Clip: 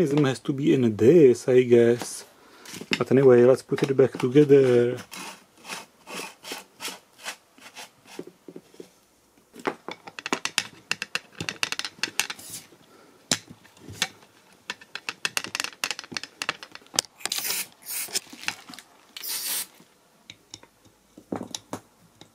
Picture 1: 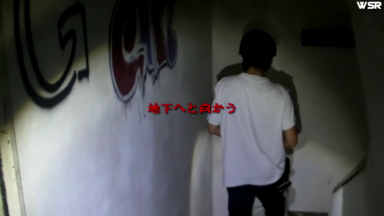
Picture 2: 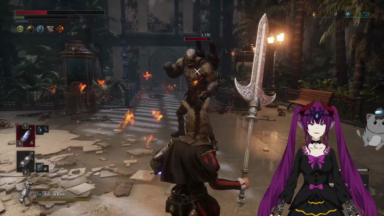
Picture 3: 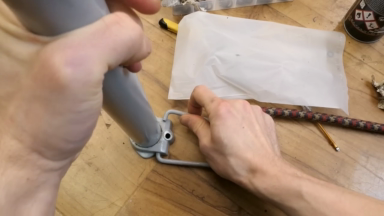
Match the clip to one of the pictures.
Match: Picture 3